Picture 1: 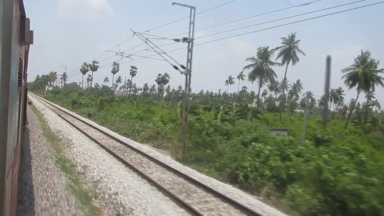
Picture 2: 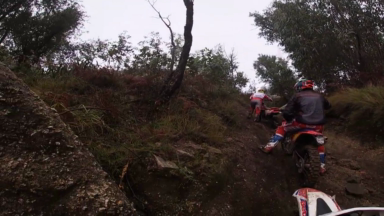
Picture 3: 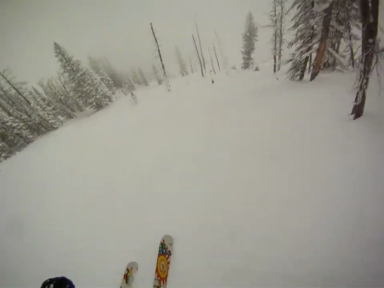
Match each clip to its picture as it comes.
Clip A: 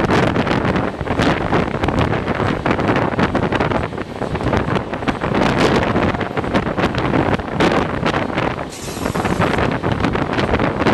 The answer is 1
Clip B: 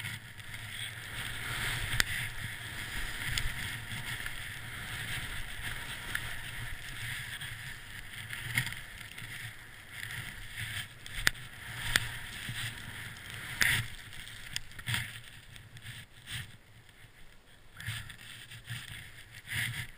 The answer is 3